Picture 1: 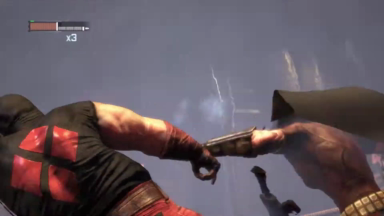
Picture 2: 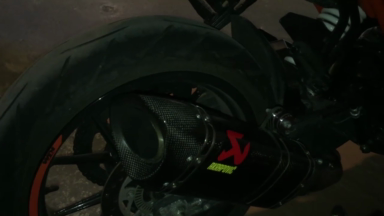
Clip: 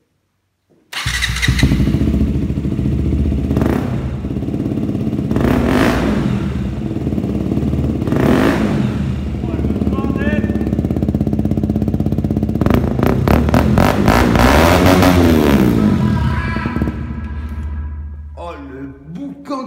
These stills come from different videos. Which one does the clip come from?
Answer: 2